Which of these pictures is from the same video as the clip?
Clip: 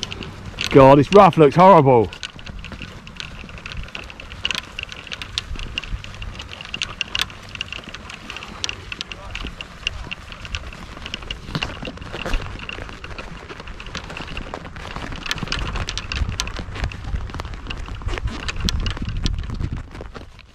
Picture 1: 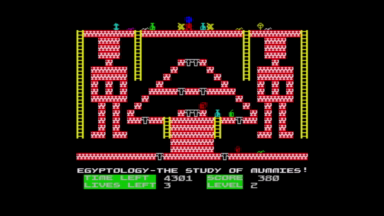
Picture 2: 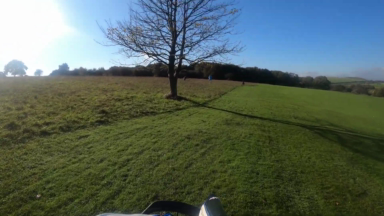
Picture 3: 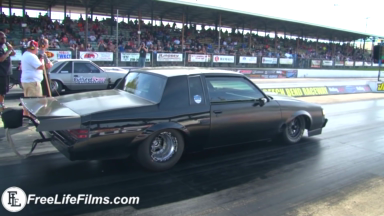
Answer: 2